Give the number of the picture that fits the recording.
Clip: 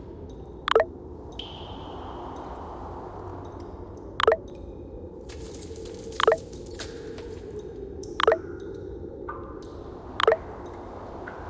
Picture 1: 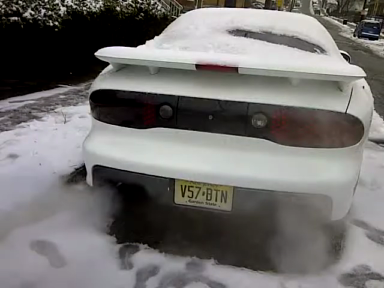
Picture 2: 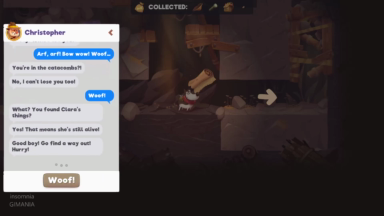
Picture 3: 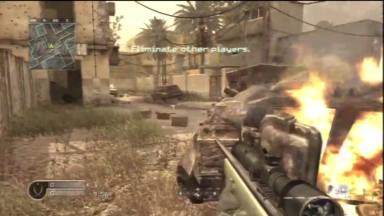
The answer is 2